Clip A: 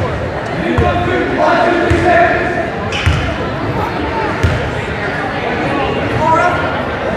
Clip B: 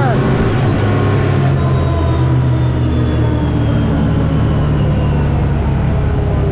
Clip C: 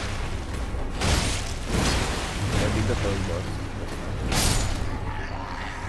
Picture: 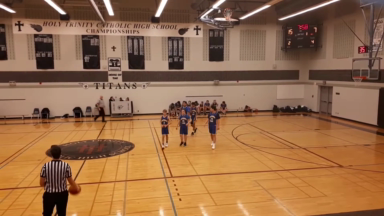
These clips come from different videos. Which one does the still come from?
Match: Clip A